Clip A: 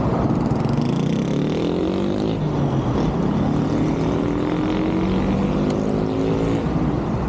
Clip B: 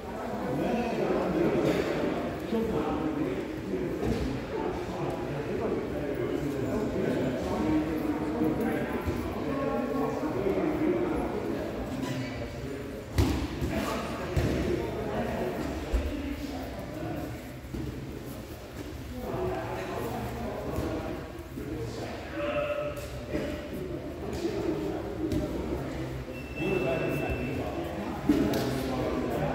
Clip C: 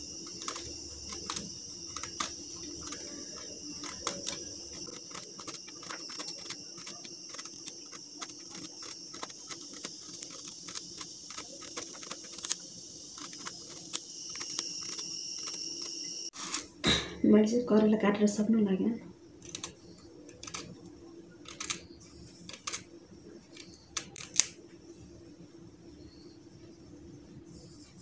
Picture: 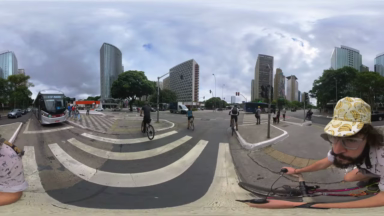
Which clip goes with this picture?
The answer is A